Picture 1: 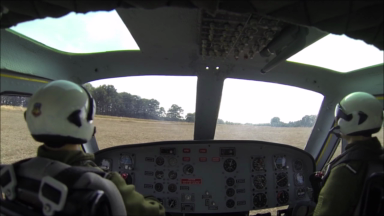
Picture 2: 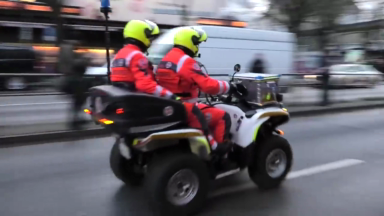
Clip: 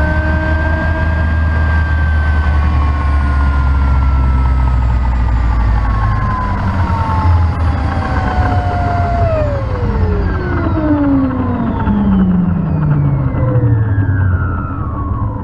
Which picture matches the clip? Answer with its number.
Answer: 1